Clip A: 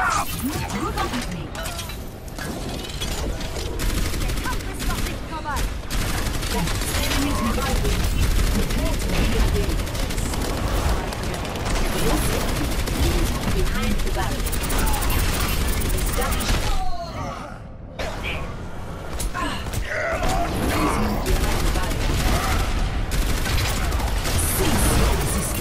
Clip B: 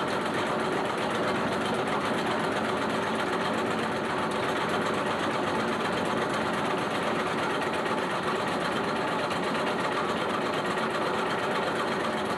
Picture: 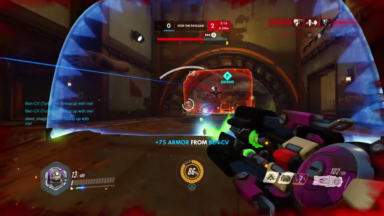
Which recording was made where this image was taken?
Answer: A